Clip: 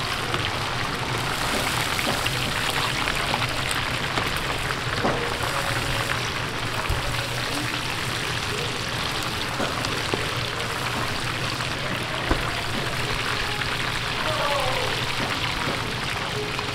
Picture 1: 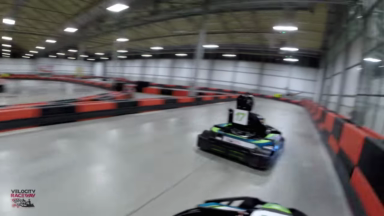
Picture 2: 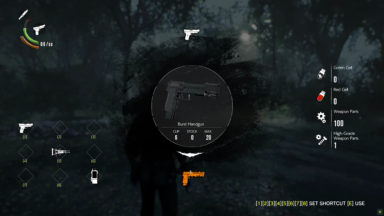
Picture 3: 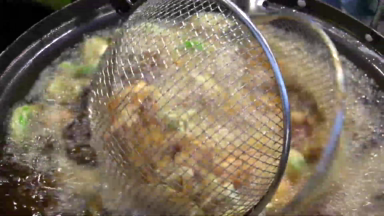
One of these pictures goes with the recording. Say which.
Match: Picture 3